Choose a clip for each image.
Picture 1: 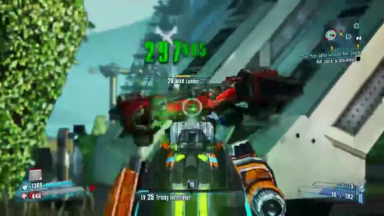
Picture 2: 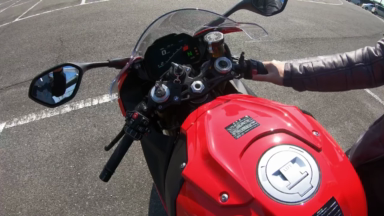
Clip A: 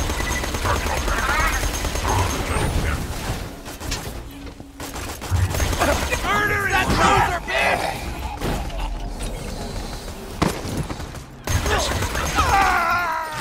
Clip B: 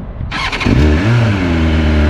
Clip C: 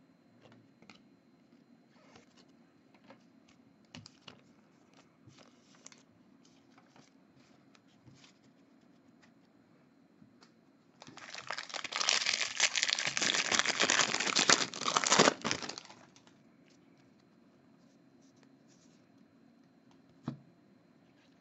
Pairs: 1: A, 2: B